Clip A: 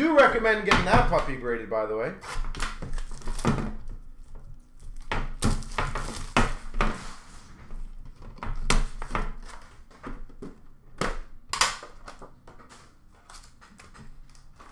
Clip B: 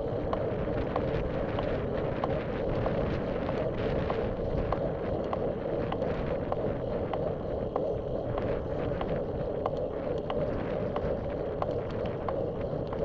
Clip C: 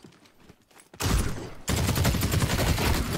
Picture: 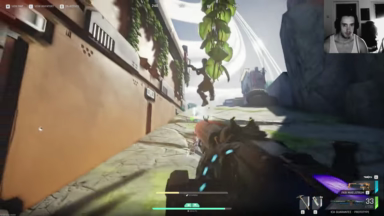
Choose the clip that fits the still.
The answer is C